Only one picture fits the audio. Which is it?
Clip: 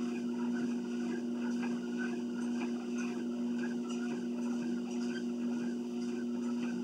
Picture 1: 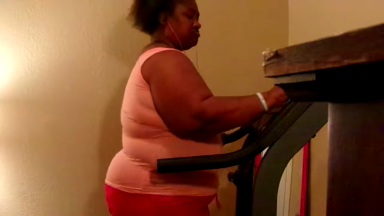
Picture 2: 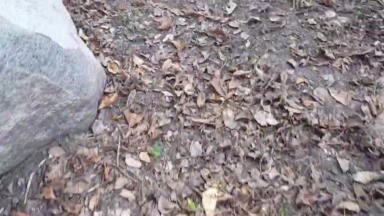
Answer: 1